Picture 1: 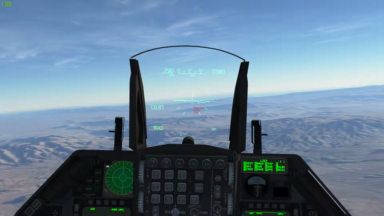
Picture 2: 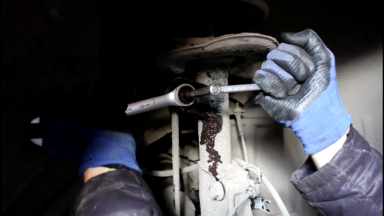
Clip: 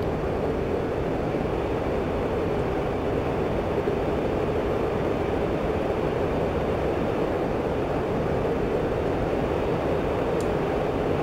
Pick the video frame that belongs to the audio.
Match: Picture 1